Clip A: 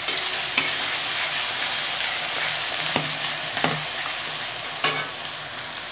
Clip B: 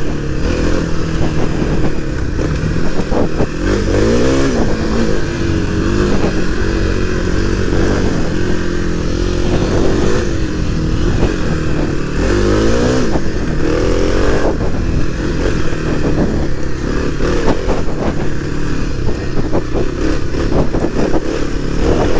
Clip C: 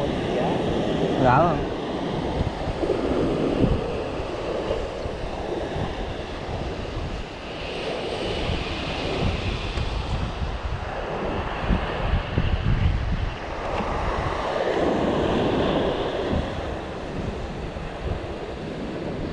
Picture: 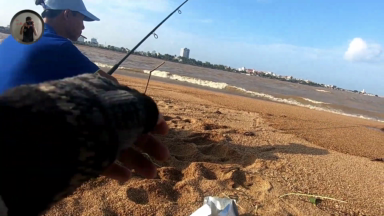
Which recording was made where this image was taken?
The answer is C